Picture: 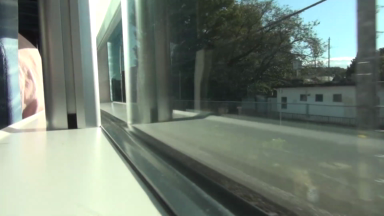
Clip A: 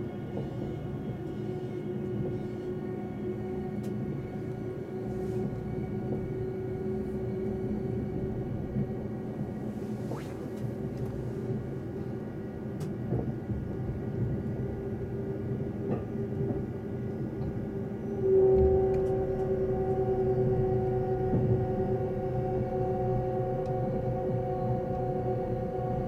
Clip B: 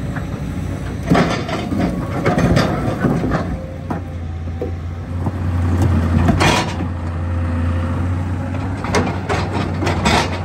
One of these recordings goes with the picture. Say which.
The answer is A